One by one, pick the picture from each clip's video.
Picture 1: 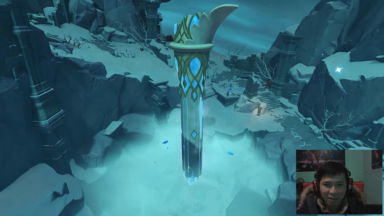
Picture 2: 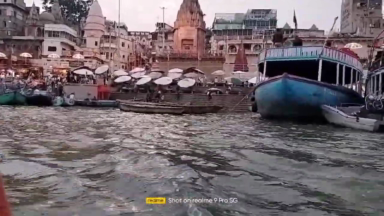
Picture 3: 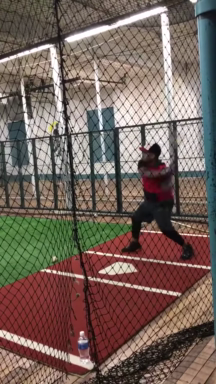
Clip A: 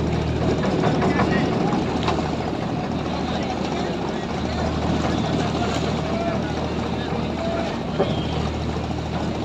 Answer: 2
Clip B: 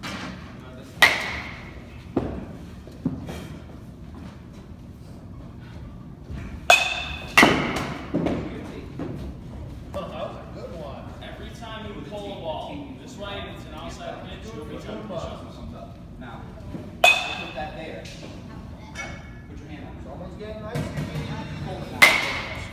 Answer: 3